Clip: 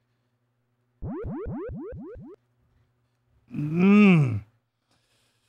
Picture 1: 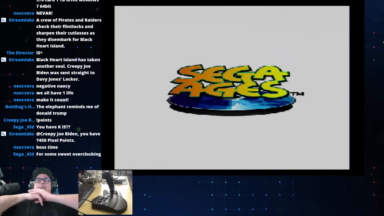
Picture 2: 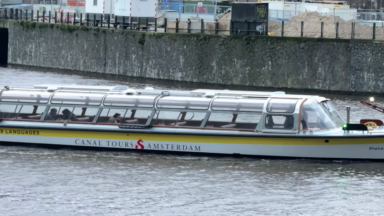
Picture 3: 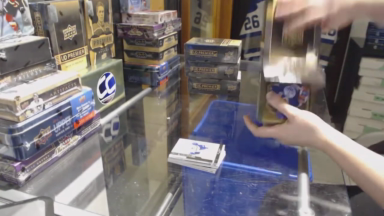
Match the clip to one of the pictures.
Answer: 1